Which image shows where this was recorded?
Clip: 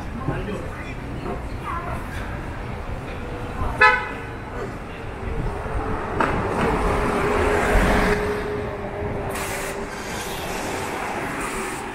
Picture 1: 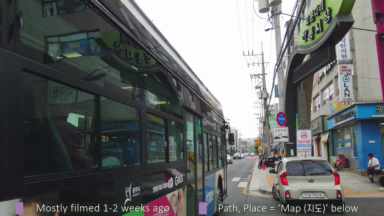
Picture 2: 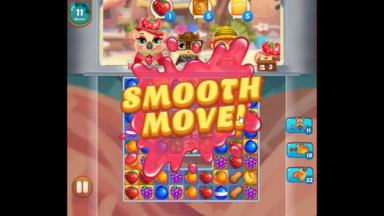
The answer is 1